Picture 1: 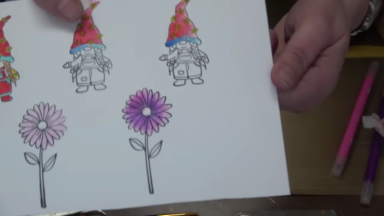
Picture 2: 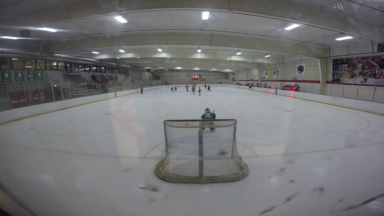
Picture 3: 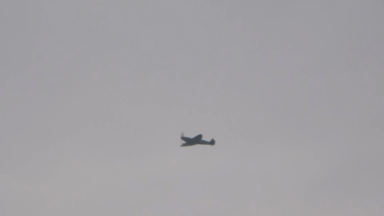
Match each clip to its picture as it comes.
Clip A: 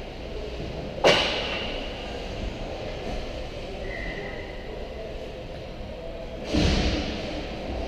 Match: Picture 2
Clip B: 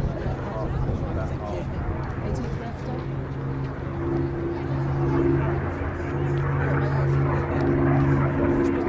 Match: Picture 3